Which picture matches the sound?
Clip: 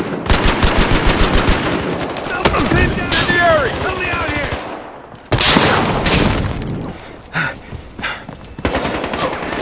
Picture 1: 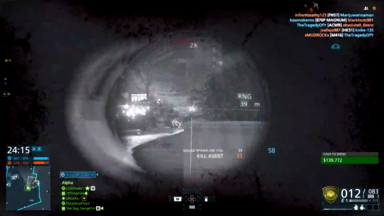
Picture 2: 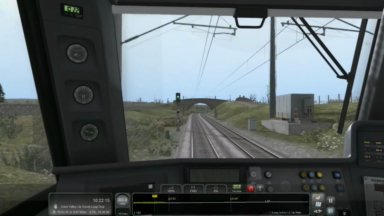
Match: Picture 1